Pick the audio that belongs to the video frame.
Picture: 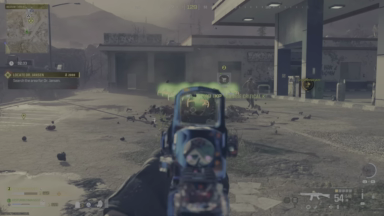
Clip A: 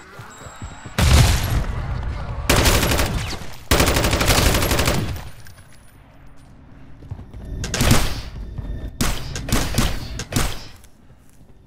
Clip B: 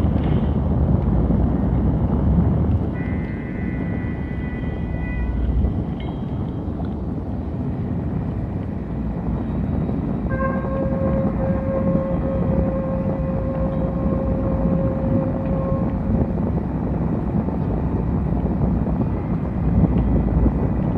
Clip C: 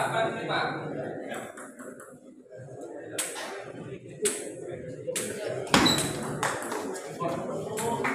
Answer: A